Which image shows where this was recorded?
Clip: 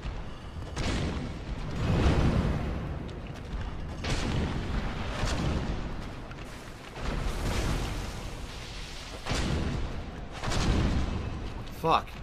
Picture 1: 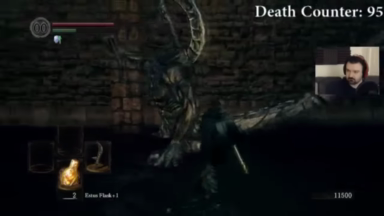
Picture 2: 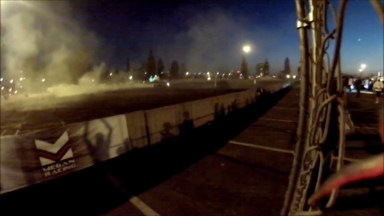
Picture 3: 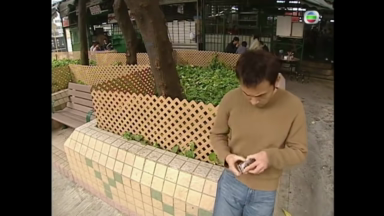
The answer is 1